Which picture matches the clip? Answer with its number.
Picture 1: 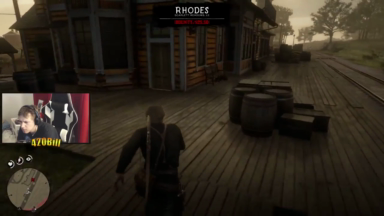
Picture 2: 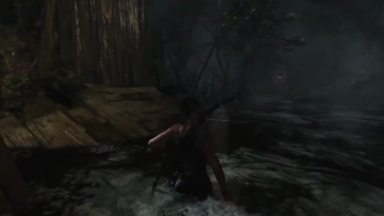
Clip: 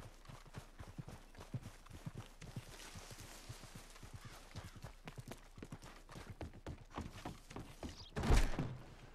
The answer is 1